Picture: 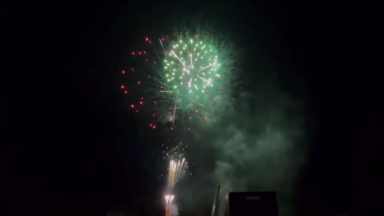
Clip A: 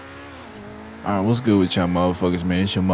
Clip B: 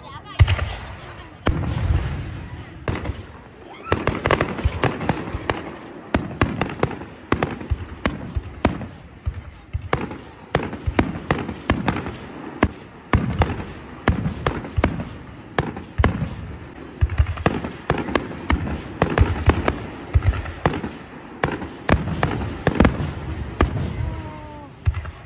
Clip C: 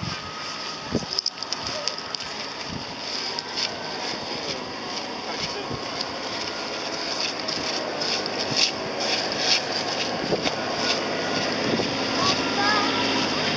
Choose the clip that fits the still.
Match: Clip B